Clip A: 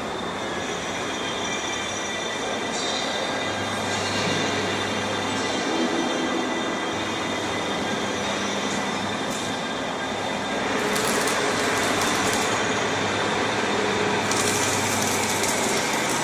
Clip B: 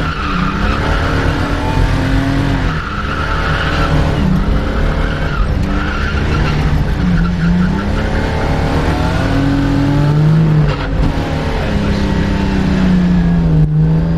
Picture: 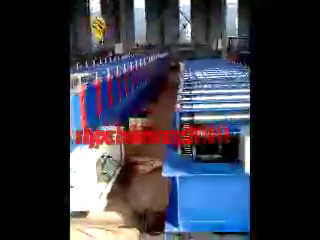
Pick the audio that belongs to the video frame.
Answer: A